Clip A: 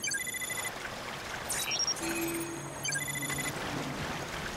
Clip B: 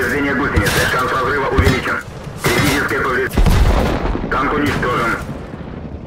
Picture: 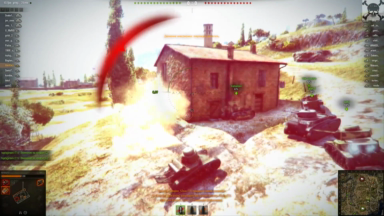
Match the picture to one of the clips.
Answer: B